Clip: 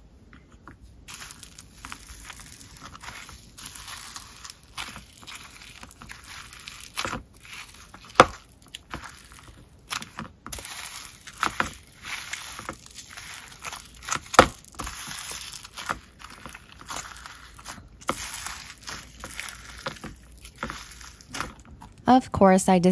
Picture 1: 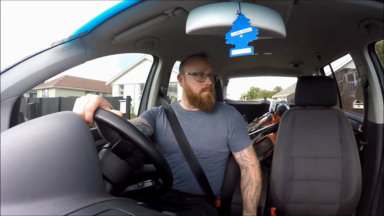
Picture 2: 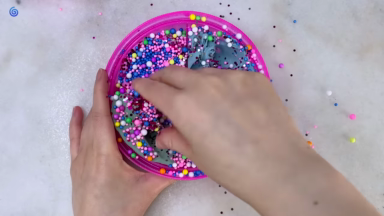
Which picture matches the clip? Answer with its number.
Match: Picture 2